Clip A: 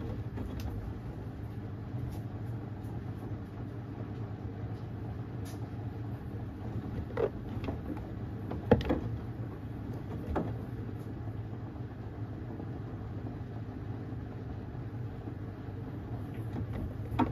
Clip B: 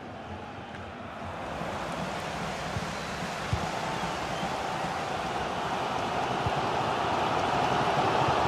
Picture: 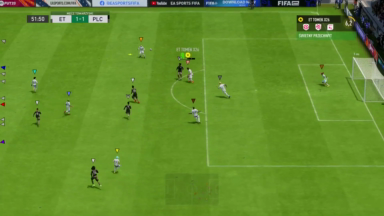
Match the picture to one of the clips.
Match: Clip B